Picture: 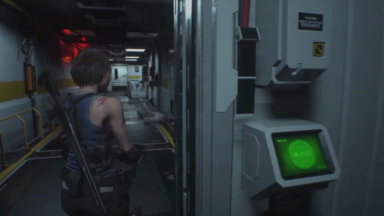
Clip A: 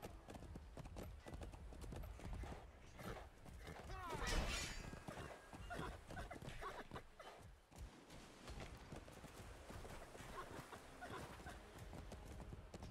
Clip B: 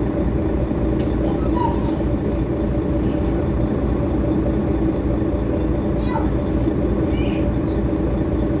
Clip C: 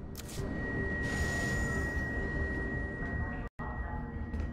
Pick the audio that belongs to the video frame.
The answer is C